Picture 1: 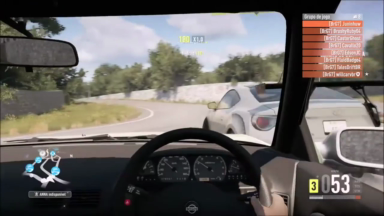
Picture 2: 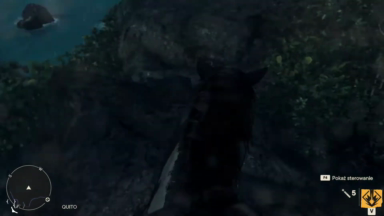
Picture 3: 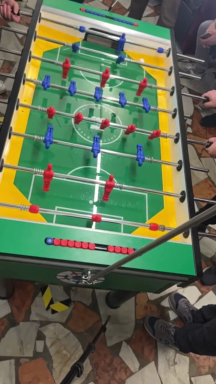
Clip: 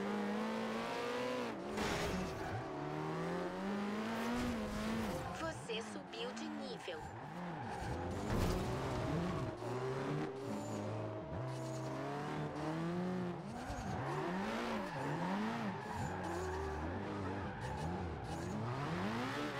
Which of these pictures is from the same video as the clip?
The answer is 1